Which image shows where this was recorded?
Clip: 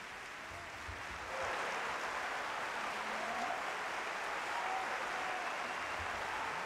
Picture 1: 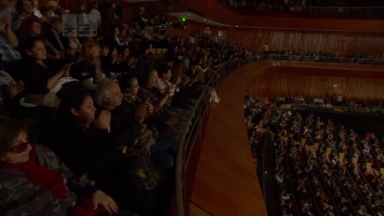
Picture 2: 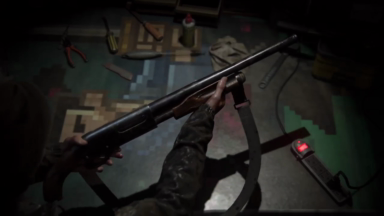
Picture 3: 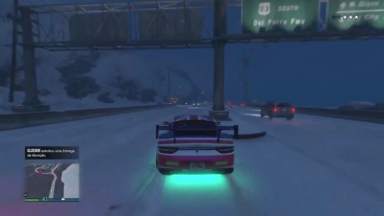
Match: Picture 1